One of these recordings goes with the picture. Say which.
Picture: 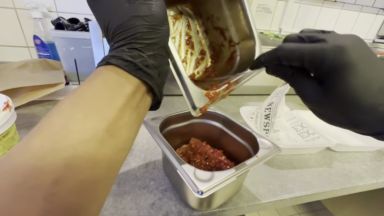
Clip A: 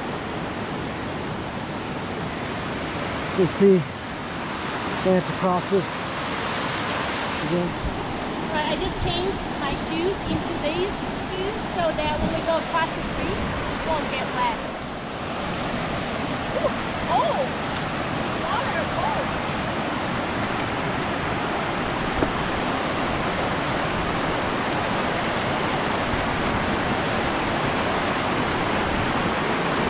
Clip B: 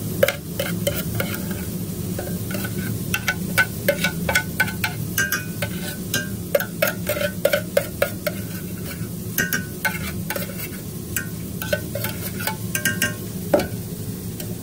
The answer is B